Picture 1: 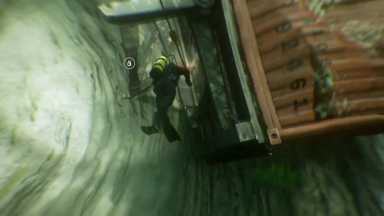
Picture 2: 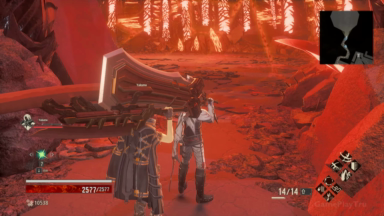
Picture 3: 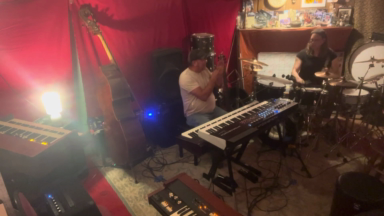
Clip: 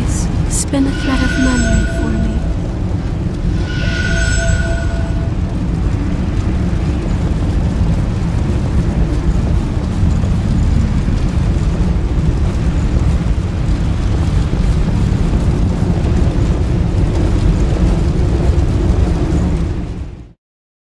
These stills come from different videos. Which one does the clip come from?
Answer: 2